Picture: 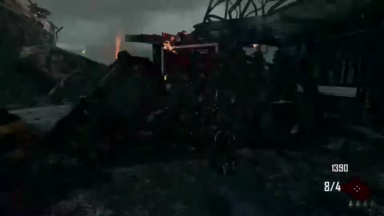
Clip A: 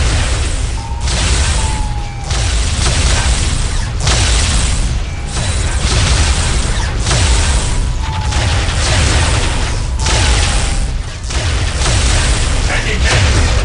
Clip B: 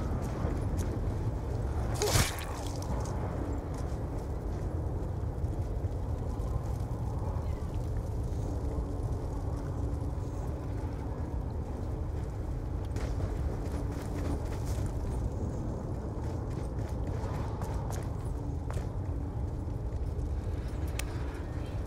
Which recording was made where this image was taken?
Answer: B